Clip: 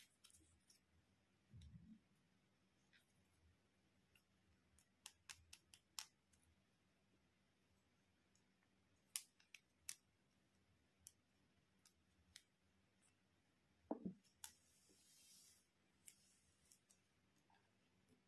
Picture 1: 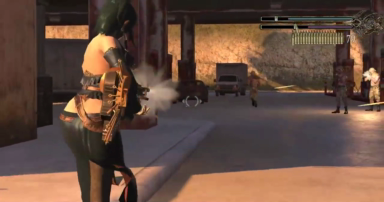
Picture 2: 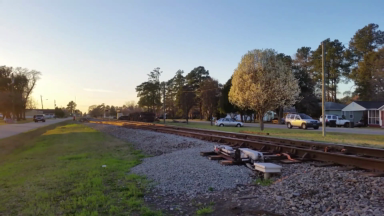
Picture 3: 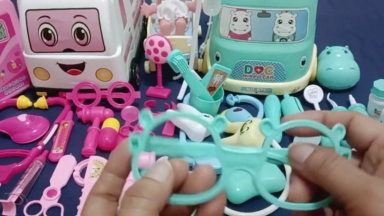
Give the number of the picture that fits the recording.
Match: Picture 3